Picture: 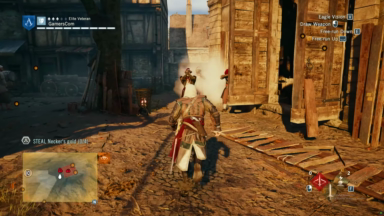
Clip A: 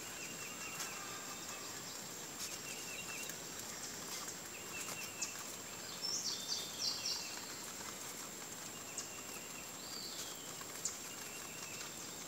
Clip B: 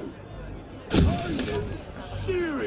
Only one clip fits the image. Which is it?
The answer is B